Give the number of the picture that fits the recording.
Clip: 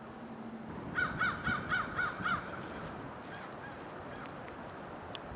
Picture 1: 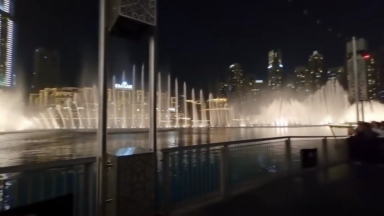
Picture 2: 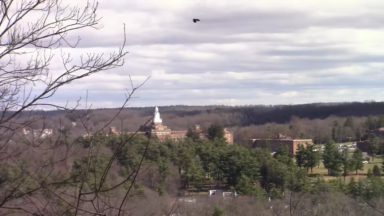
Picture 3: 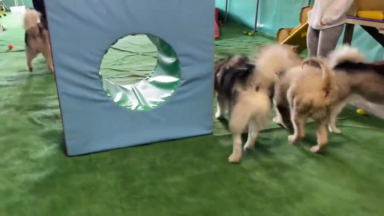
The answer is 2